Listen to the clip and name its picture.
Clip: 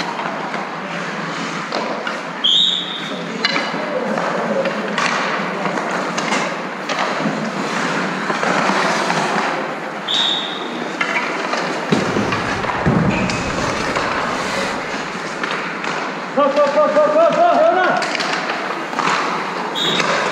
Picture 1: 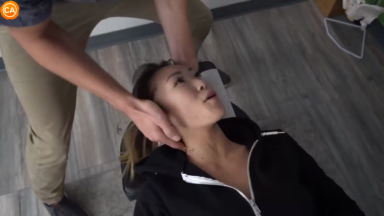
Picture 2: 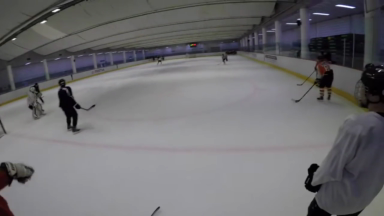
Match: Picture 2